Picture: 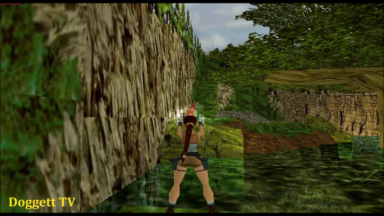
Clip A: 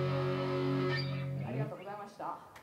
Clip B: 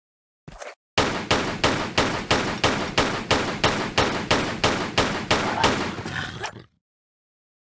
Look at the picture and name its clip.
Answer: B